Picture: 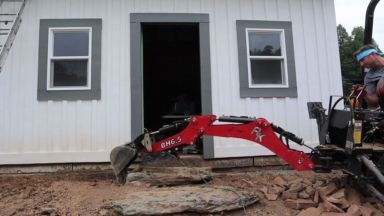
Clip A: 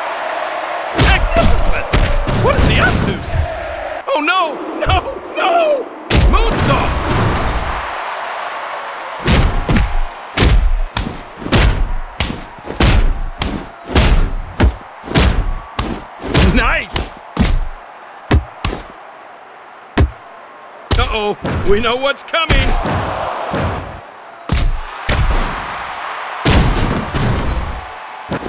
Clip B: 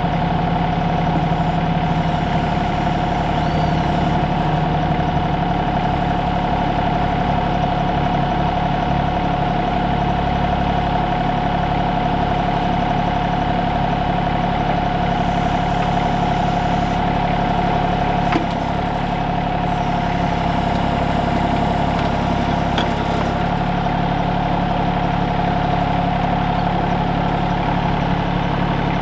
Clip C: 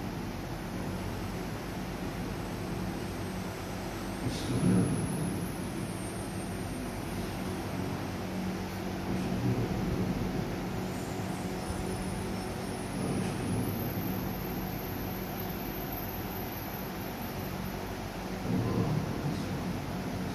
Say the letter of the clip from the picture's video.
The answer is B